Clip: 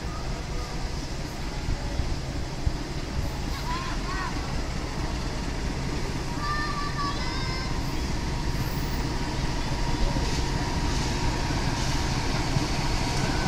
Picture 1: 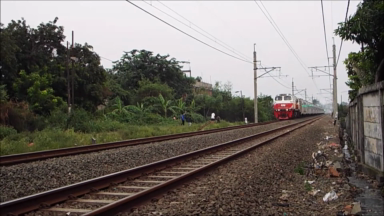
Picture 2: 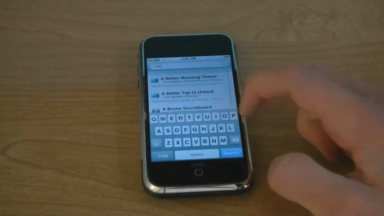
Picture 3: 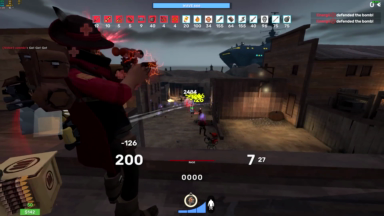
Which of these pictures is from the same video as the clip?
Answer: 1